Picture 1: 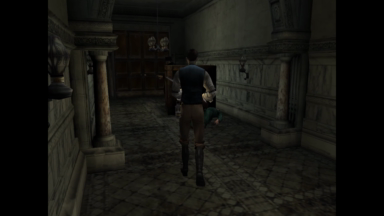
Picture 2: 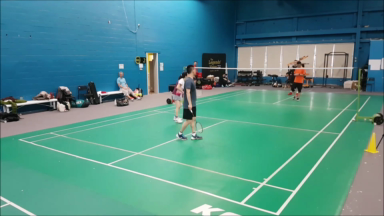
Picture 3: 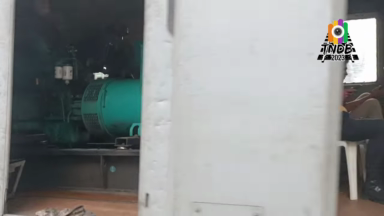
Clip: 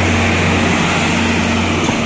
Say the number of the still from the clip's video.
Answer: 3